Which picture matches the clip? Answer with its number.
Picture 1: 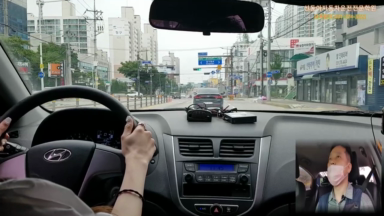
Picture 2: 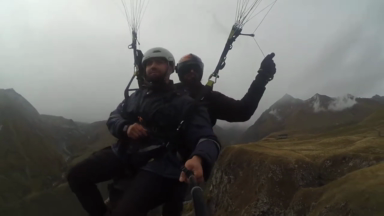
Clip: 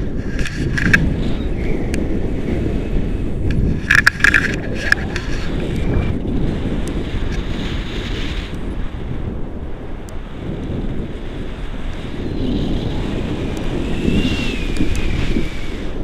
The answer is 2